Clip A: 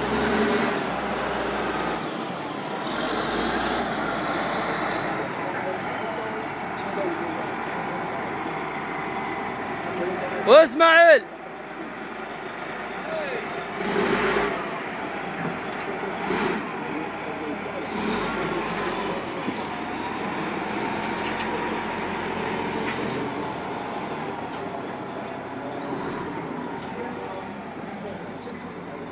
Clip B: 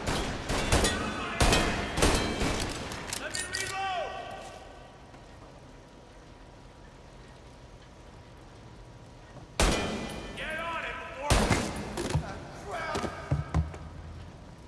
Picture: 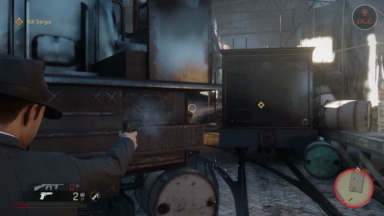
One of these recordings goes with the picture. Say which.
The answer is B